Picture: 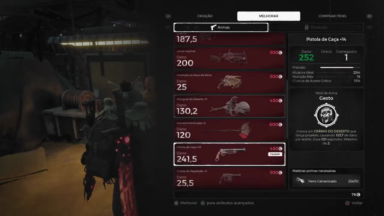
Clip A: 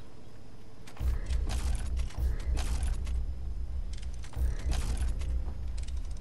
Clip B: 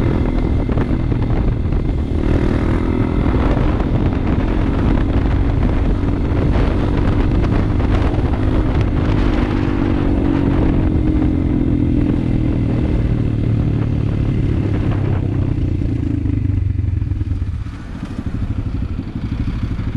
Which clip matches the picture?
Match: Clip A